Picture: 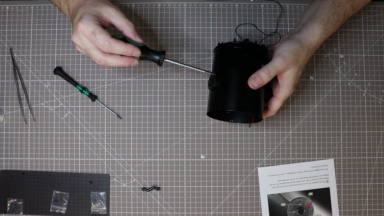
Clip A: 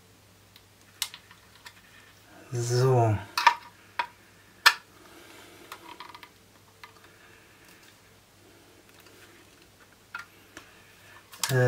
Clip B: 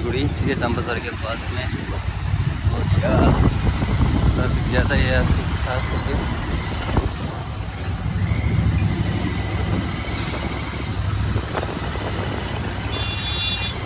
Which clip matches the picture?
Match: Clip A